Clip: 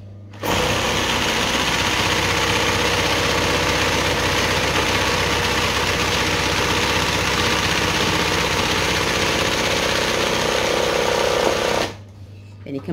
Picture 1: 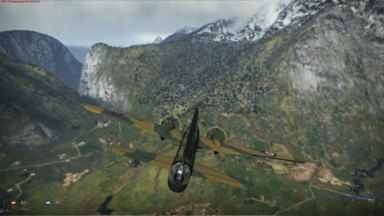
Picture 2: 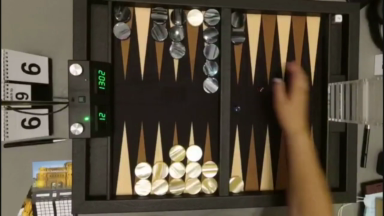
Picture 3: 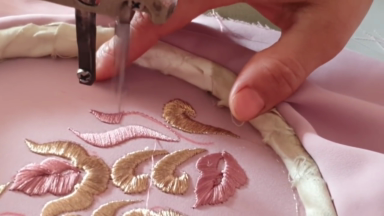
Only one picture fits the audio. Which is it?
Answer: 3